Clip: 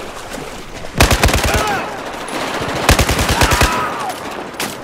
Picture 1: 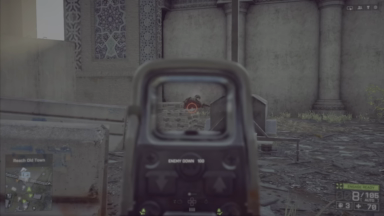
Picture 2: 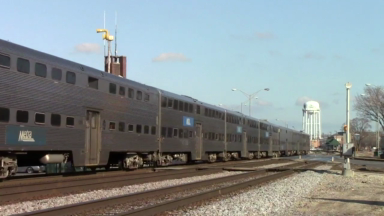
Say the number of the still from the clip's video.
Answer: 1